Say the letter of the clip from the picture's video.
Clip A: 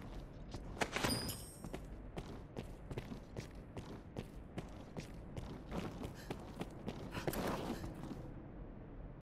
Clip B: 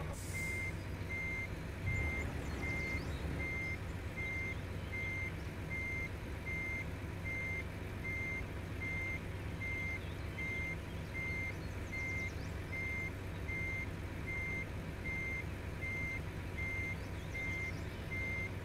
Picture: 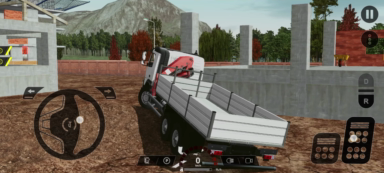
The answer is B